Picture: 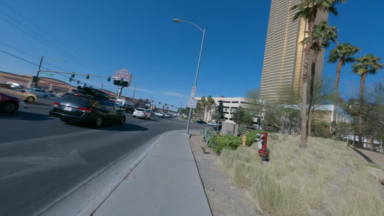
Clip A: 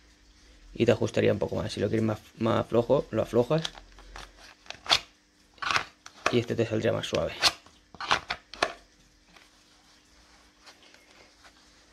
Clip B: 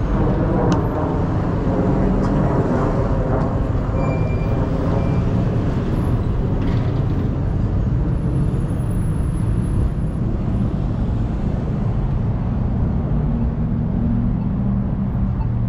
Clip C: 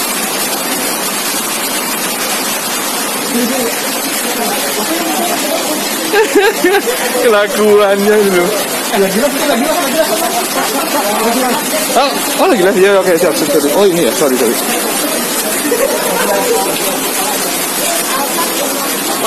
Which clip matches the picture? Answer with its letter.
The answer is B